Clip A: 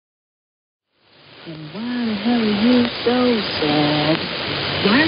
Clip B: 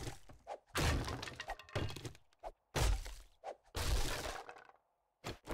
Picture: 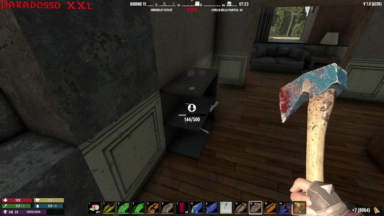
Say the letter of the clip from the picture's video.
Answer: B